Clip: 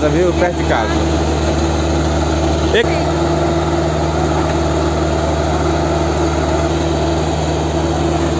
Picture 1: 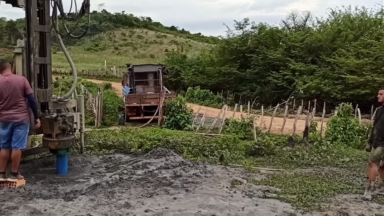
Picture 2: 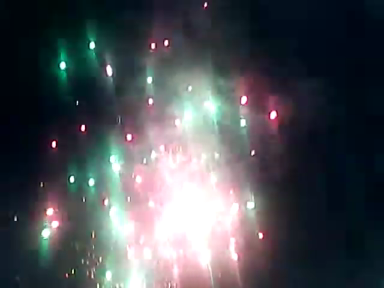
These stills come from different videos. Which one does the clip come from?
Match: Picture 1